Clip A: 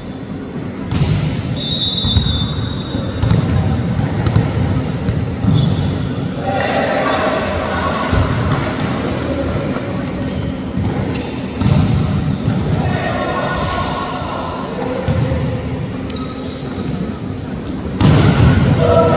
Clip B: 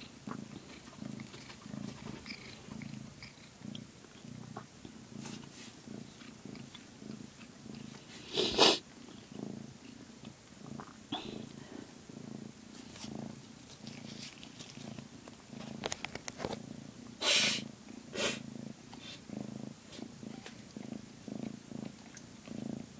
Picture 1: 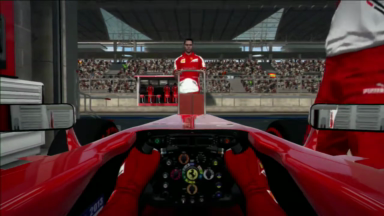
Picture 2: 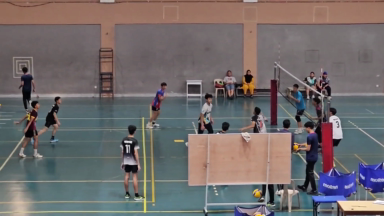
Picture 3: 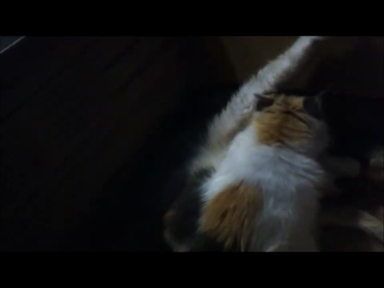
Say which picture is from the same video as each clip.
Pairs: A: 2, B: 3